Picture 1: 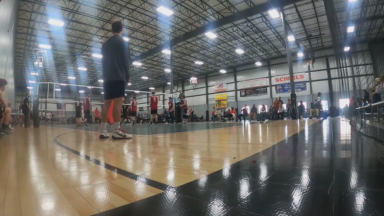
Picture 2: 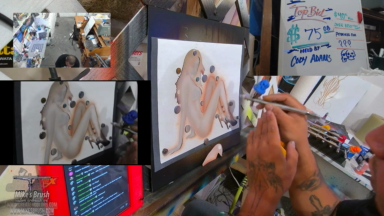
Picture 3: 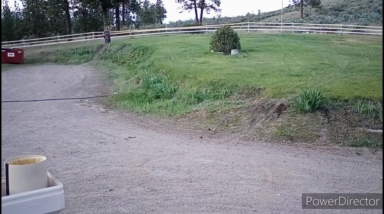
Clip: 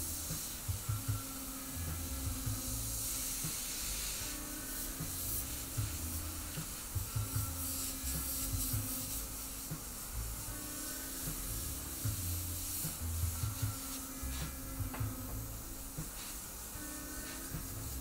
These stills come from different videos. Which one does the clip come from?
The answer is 2